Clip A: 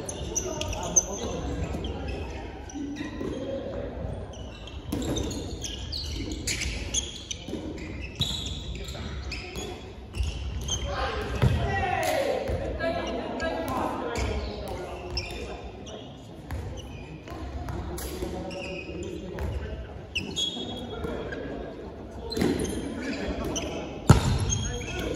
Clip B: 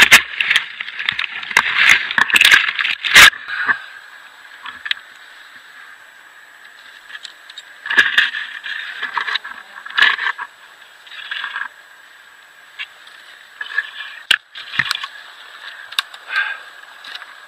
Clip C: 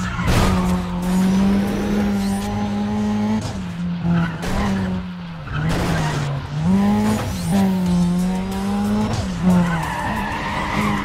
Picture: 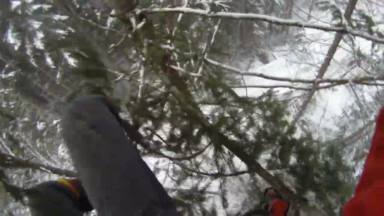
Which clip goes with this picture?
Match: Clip B